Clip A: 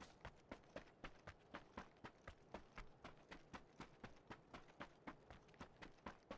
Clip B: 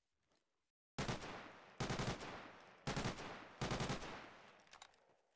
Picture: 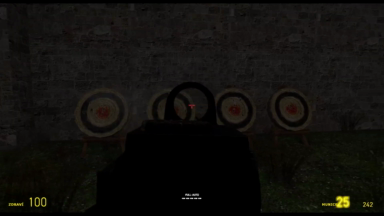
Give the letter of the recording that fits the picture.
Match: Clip B